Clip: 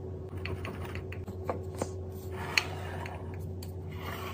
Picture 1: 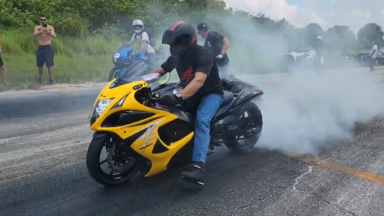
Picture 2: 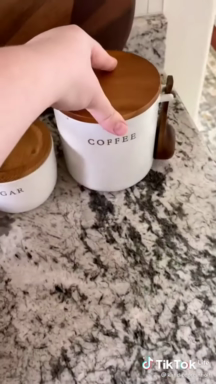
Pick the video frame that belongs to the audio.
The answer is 2